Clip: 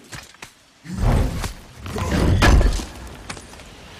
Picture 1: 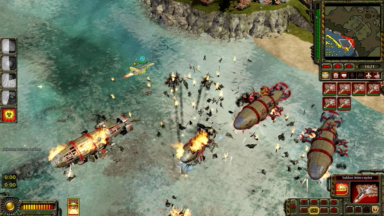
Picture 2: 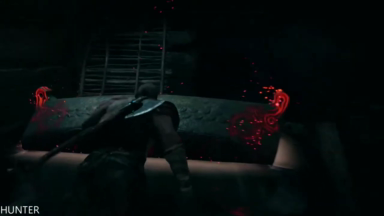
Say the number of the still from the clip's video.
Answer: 2